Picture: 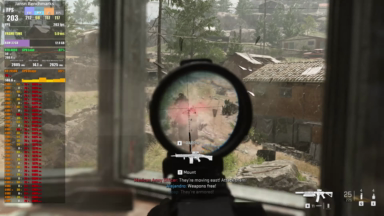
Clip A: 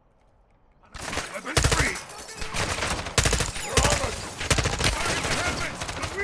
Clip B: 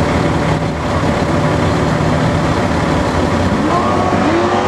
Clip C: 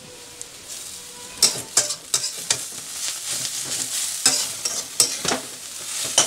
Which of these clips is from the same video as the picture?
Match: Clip A